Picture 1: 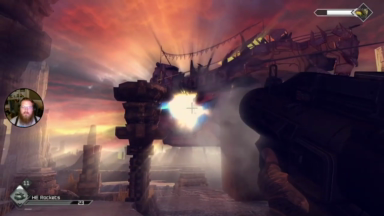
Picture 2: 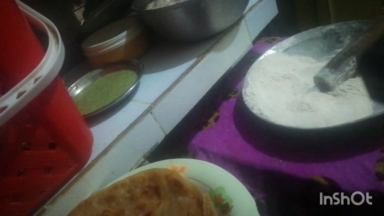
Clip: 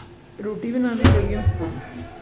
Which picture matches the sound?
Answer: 2